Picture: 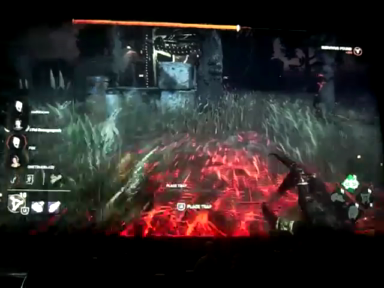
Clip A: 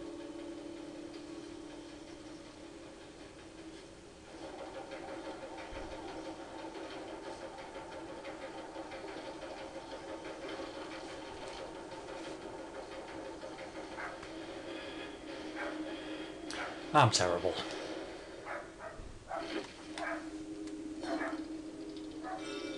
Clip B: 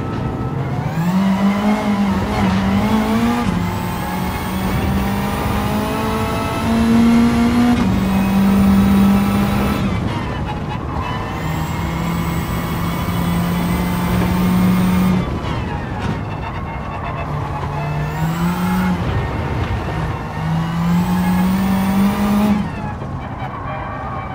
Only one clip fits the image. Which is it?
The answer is A